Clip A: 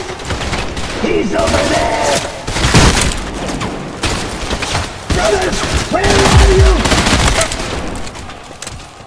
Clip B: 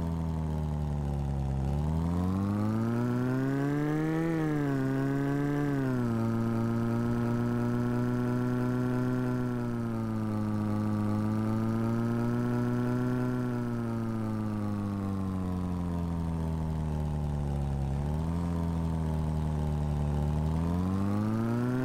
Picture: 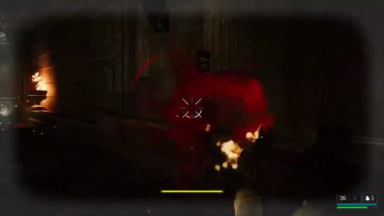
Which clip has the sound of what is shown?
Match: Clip A